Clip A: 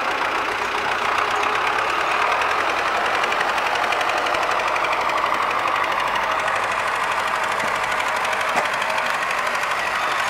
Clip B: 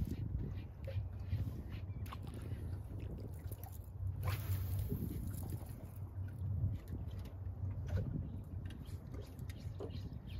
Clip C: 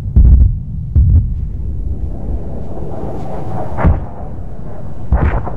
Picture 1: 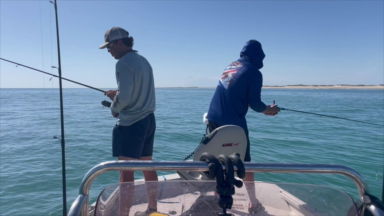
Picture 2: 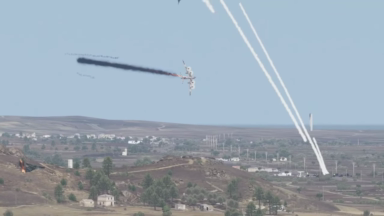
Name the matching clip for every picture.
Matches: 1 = B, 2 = C